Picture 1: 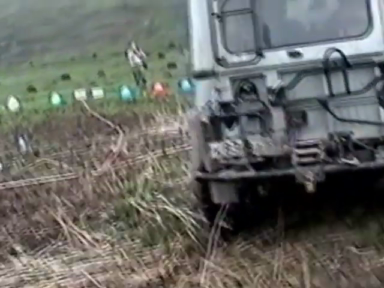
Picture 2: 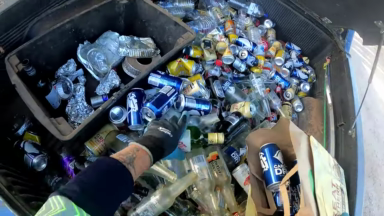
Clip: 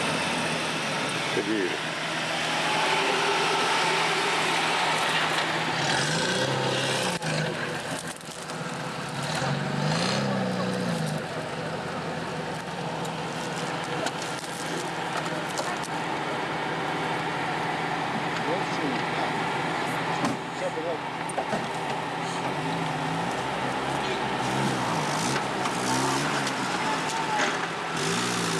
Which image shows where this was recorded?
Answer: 1